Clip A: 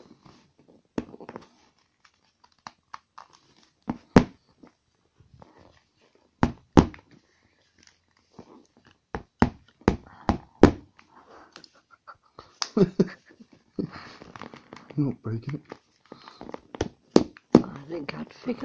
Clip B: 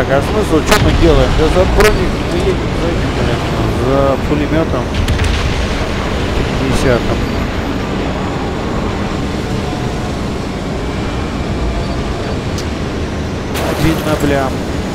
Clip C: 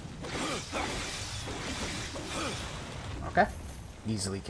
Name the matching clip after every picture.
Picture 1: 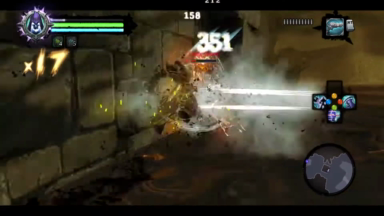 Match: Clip C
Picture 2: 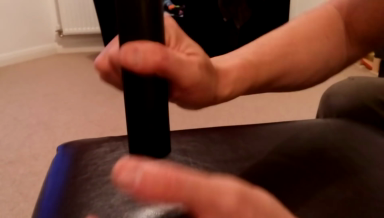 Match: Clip A